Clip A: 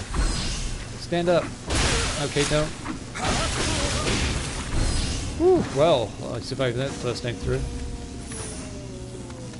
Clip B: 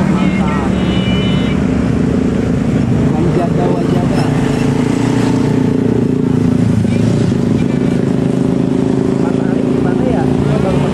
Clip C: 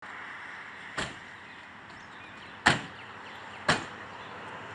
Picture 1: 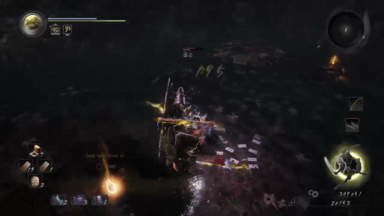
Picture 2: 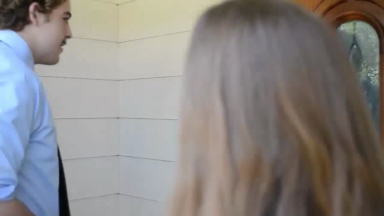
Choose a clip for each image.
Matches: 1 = A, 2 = C